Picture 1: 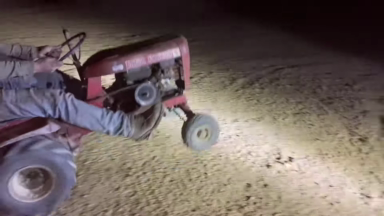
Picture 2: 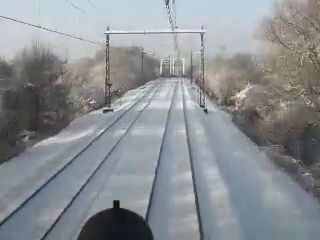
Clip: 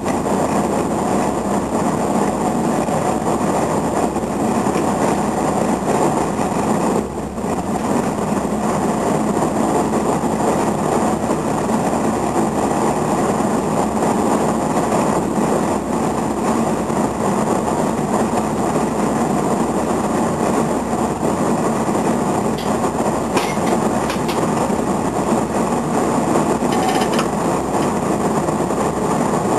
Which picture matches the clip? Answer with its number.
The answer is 2